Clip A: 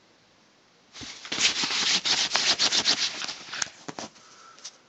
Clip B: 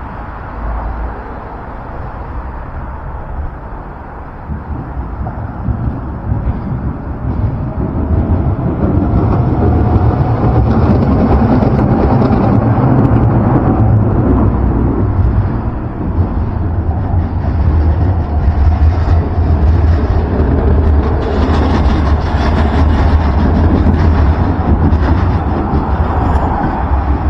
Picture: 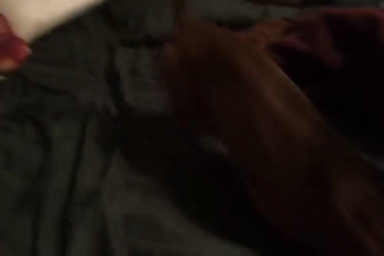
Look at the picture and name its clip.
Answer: A